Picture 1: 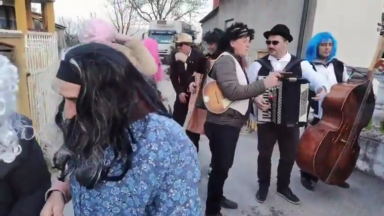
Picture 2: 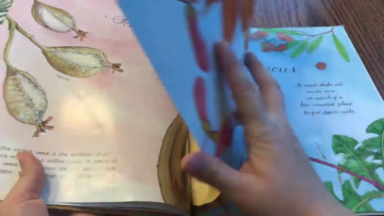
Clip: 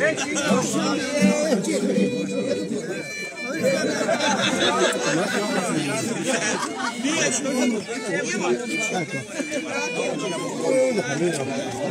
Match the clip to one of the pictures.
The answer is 1